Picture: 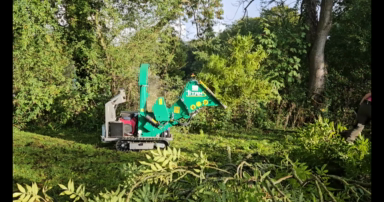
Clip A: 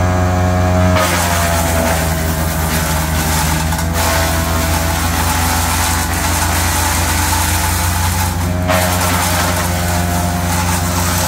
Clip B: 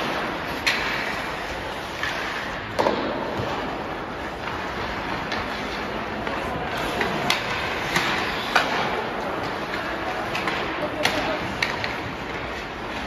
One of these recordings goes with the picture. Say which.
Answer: A